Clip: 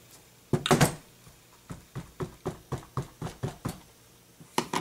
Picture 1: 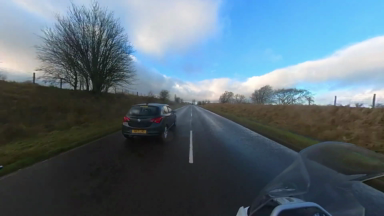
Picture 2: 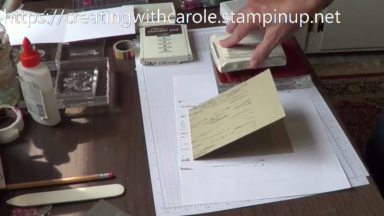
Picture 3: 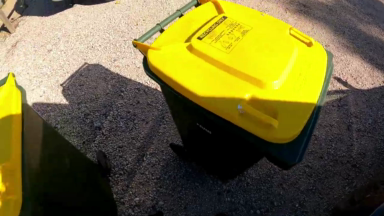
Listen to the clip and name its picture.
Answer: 2